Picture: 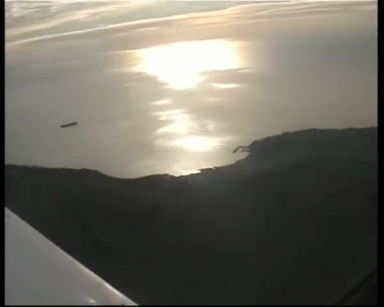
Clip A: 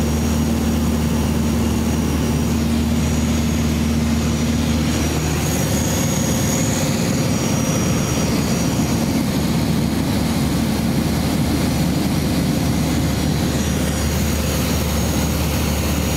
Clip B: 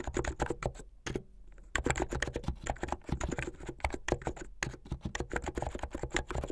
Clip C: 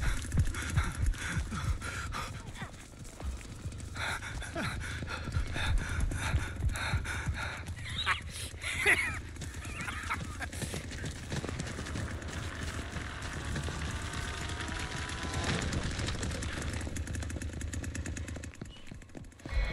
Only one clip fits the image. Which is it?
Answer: A